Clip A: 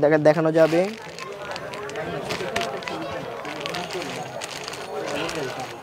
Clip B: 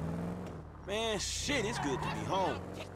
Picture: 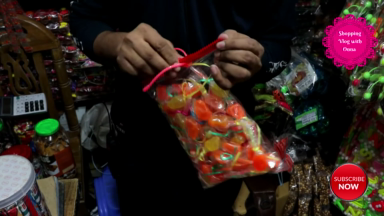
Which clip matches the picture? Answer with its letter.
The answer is A